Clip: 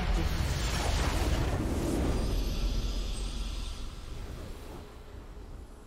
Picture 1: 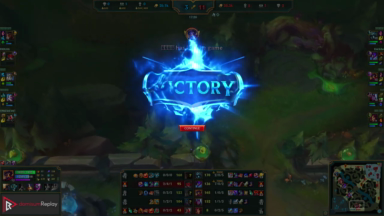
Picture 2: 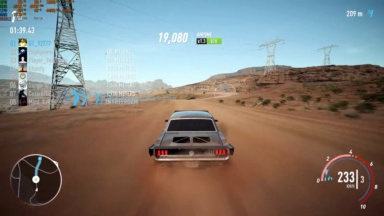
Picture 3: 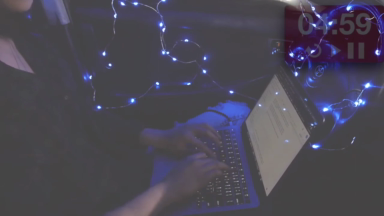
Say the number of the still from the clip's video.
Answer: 1